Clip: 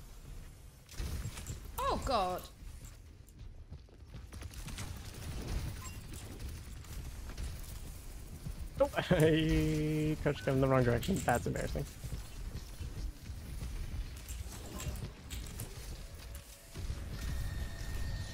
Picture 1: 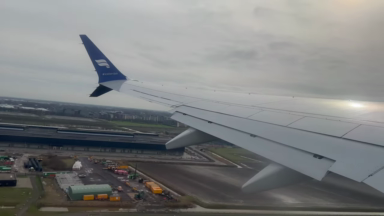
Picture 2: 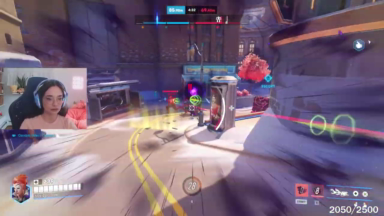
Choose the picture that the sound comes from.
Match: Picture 2